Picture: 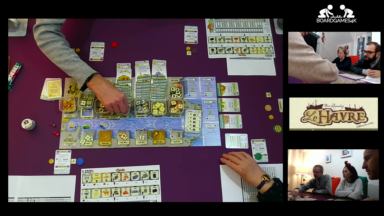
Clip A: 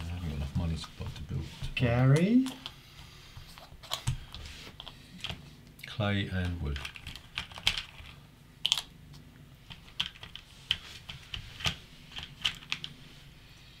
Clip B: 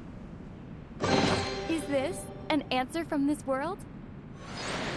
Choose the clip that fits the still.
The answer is A